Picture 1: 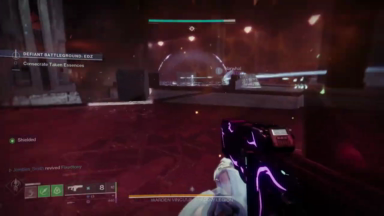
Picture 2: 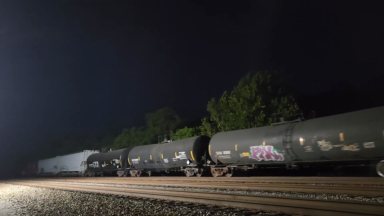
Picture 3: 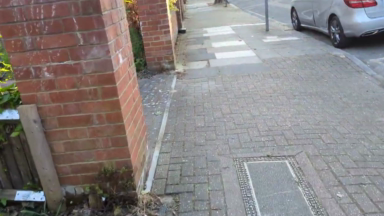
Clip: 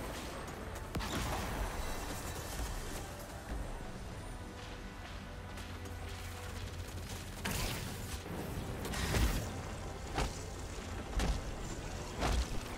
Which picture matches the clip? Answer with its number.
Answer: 1